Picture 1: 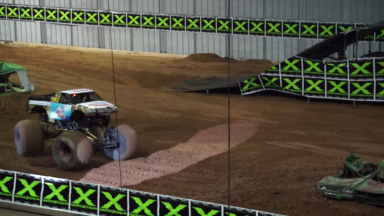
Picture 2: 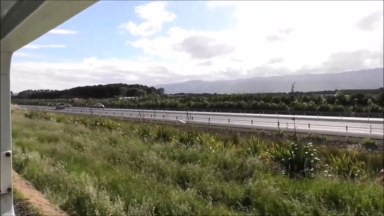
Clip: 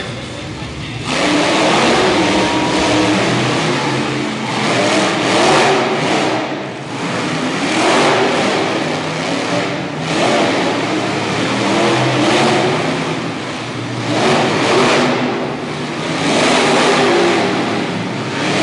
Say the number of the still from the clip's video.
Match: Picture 1